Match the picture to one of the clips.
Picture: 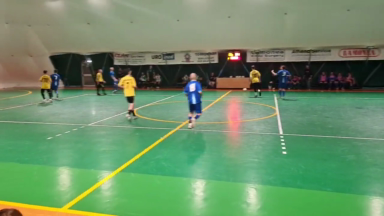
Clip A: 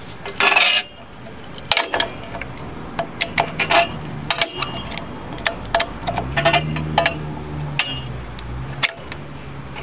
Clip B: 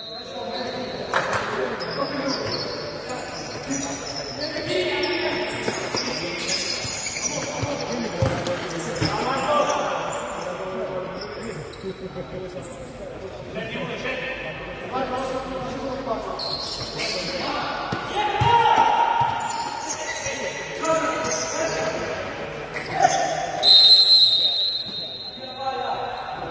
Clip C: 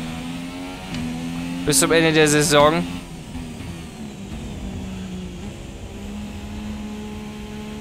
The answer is B